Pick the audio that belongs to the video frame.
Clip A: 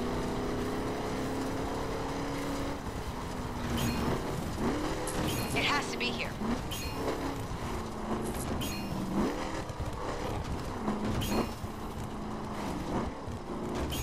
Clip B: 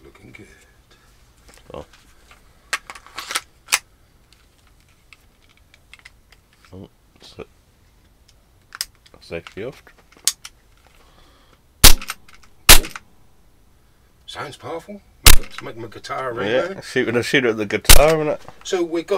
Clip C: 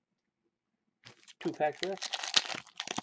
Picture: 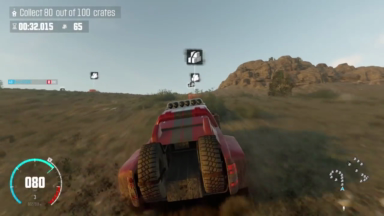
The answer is A